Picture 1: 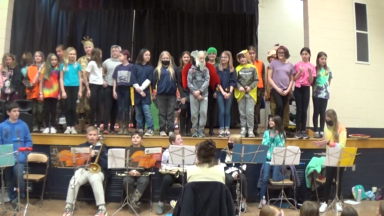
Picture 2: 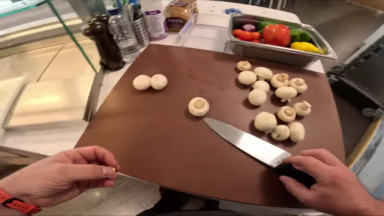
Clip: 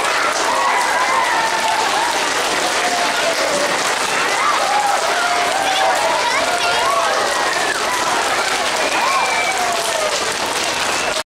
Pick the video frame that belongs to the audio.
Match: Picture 1